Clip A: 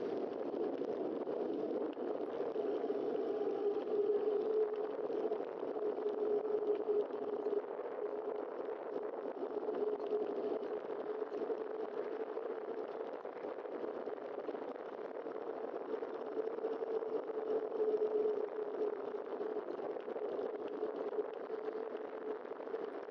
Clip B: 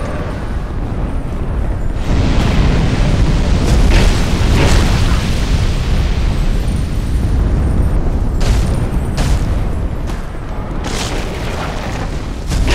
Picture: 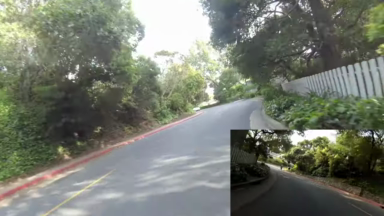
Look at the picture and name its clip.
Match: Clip A